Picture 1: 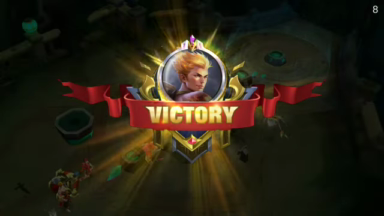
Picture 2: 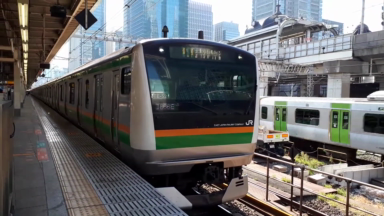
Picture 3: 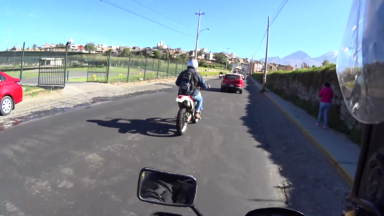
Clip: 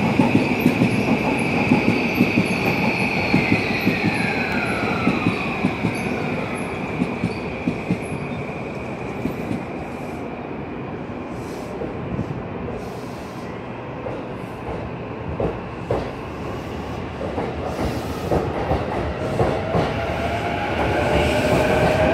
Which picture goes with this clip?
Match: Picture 2